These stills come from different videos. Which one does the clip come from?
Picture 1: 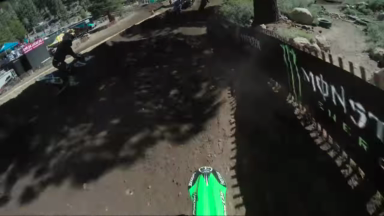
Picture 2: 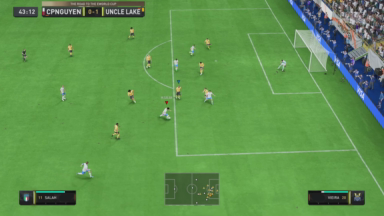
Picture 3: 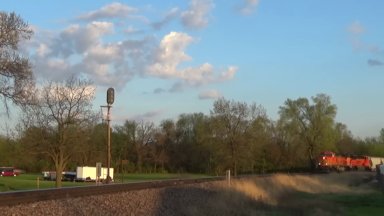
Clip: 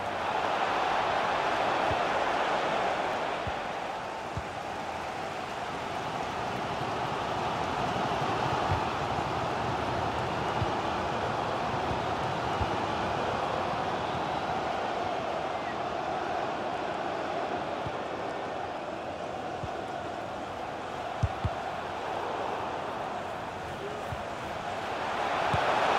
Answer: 2